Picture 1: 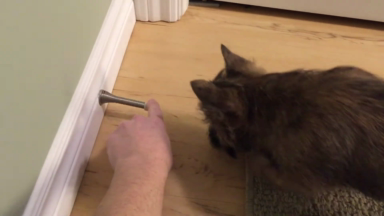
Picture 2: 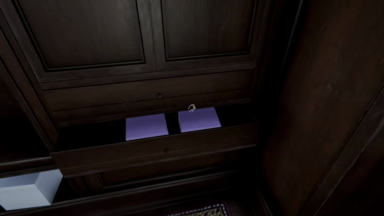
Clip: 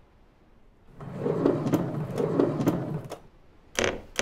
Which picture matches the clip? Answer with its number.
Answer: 2